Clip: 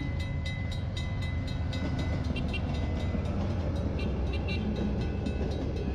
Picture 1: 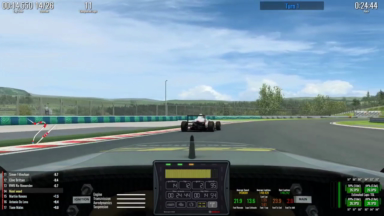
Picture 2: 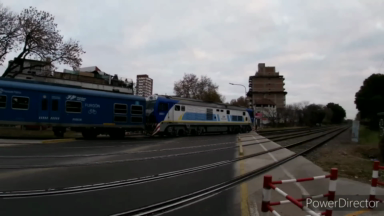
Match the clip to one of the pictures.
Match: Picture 2